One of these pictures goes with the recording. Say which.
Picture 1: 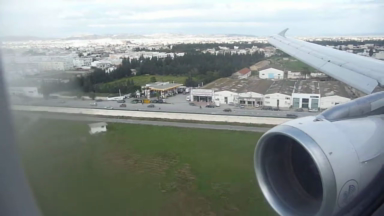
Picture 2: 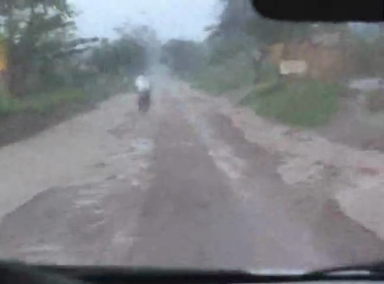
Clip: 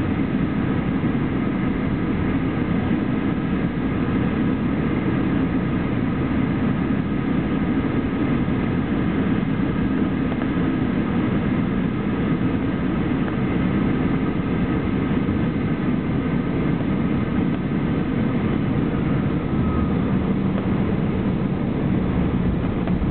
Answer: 1